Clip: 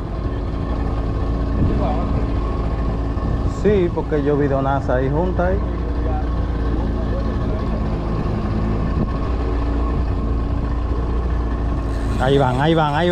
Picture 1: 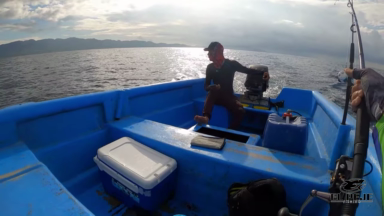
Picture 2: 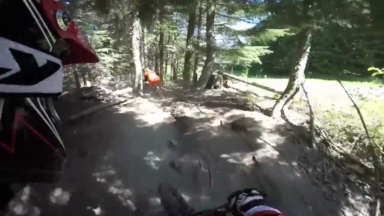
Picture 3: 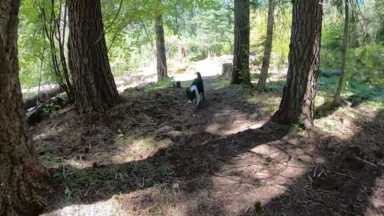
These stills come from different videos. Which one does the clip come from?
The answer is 1